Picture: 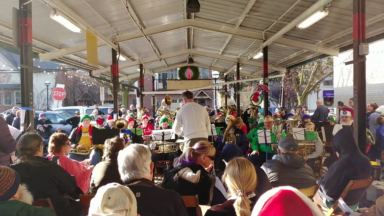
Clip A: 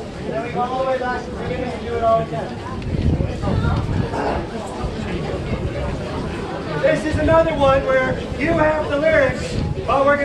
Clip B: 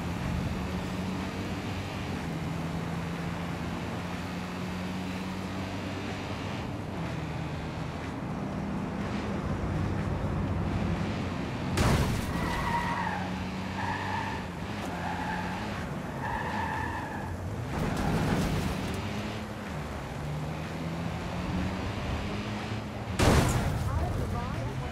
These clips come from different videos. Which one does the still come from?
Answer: A